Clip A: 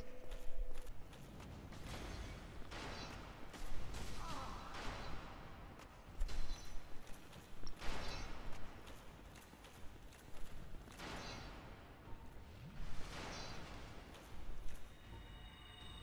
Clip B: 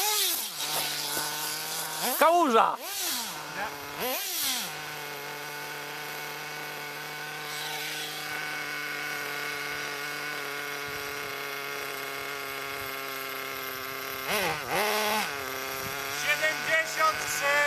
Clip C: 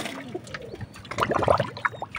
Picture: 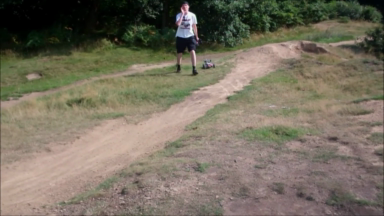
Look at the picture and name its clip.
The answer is B